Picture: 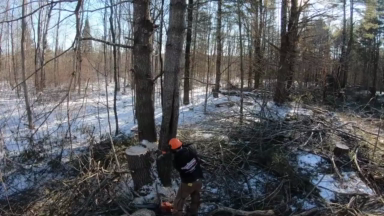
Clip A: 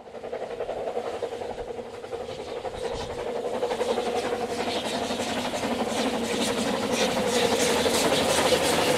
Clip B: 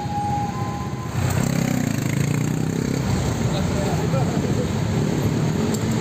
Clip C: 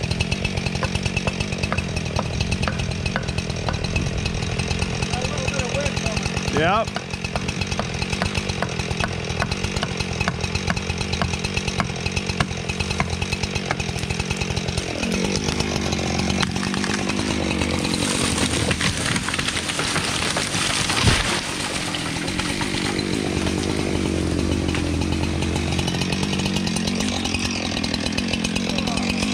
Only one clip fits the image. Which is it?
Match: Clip C